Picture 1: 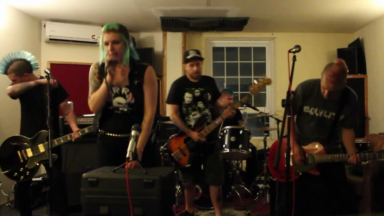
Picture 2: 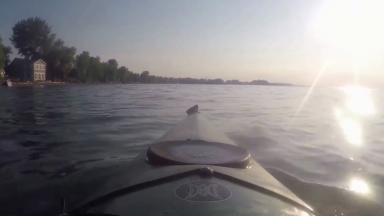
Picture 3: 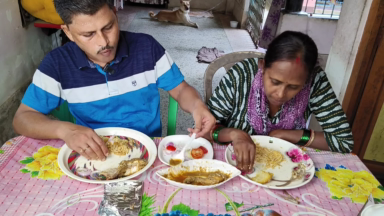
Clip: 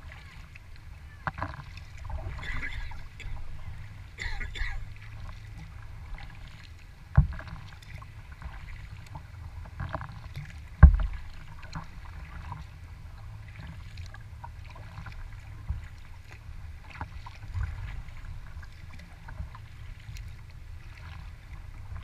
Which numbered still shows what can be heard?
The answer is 2